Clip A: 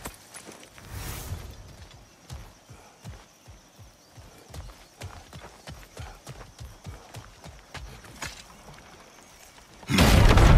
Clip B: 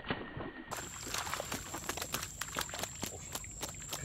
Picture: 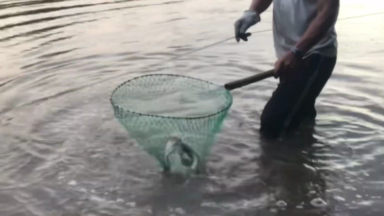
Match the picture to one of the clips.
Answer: B